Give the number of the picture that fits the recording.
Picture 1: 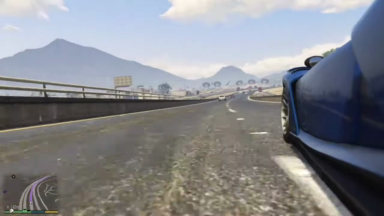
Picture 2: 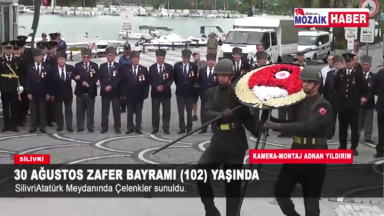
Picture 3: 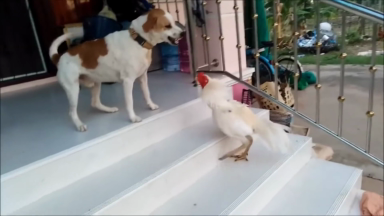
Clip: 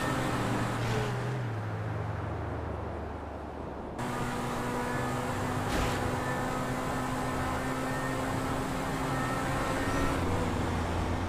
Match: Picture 1